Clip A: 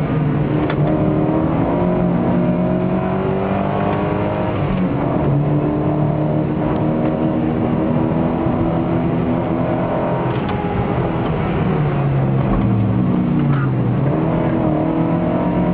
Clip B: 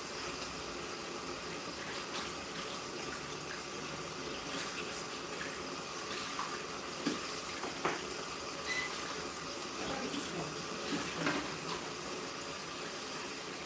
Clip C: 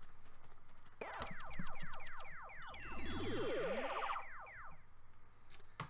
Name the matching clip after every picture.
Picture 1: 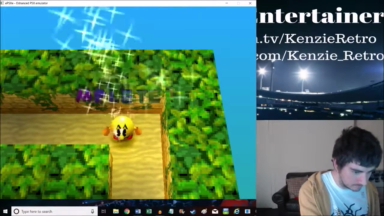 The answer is C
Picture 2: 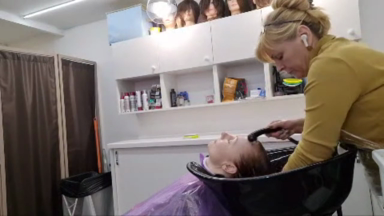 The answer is B